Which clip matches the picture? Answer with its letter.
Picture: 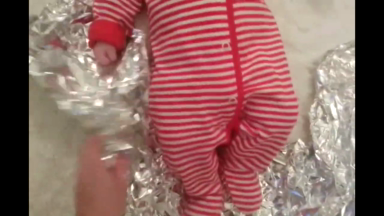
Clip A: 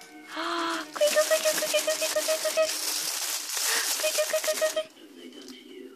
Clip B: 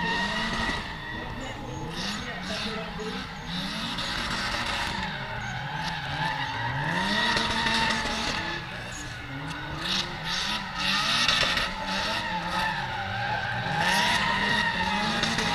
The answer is A